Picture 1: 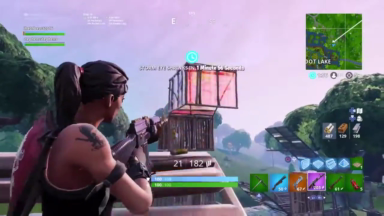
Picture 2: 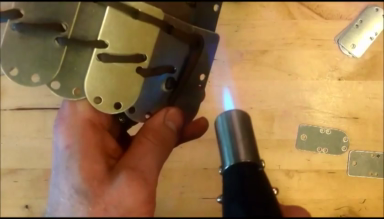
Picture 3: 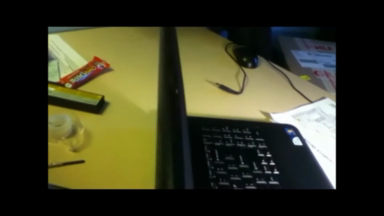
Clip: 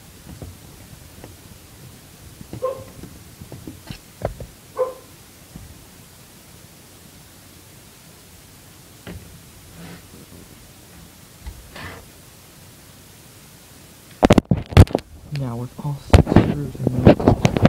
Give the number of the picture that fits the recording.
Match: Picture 3